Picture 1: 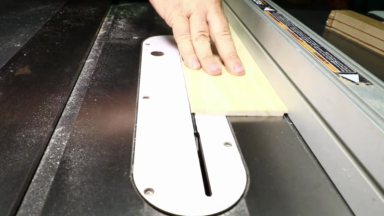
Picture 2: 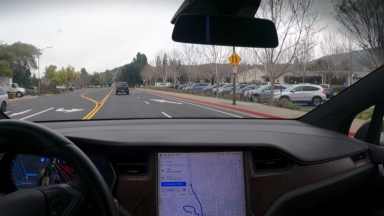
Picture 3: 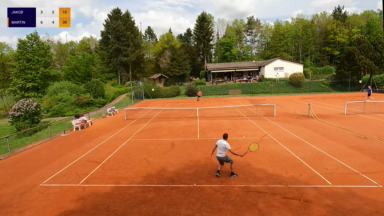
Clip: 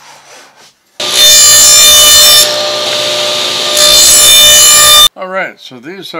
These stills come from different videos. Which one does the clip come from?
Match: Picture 1